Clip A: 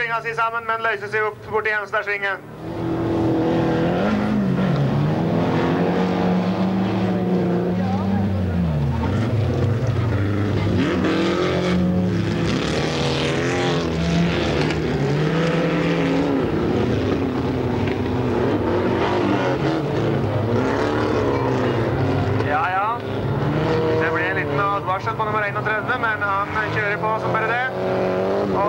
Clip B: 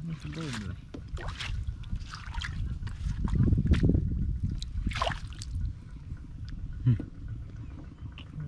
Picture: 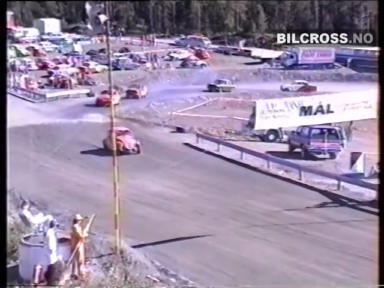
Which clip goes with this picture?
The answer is A